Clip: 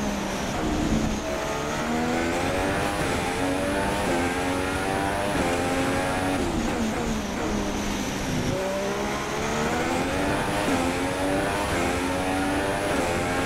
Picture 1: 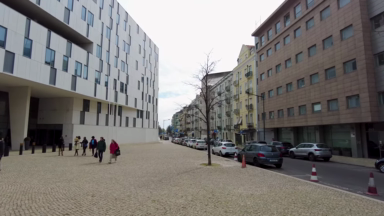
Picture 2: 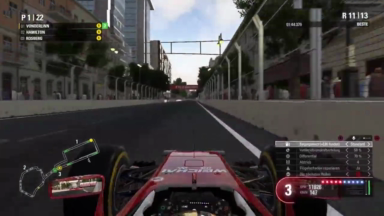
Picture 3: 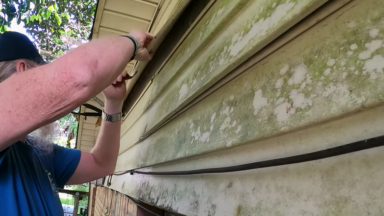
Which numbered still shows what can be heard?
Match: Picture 2